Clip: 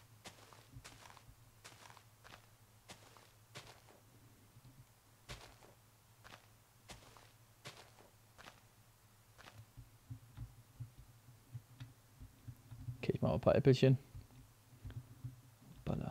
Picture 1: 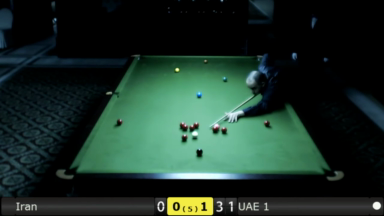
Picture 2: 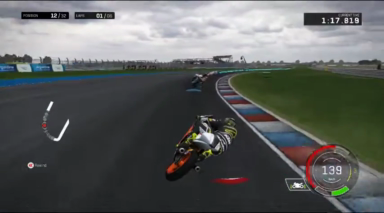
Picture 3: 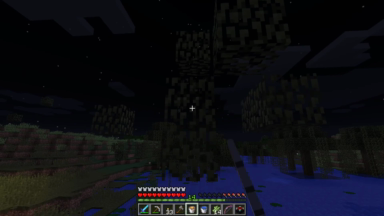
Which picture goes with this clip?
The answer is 3